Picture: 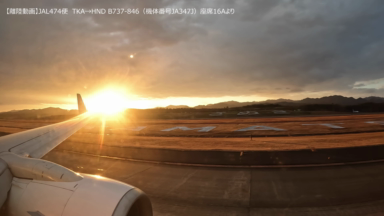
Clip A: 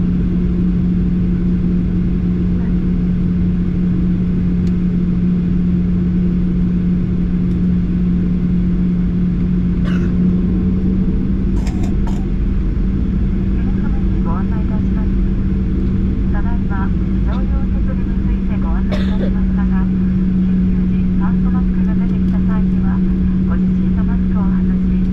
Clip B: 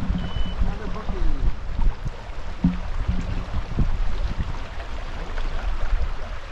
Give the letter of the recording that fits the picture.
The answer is A